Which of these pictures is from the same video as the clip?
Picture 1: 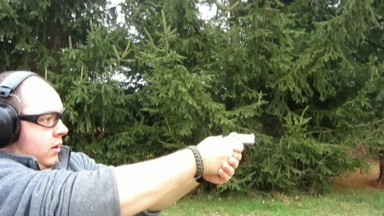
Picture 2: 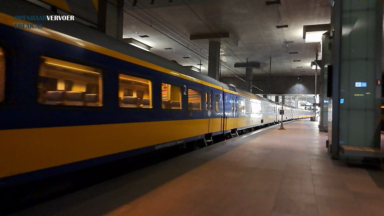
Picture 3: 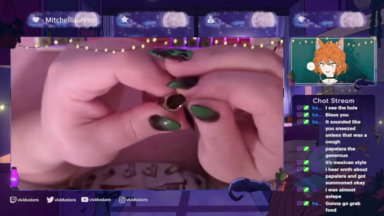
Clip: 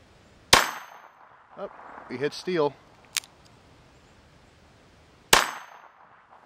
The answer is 1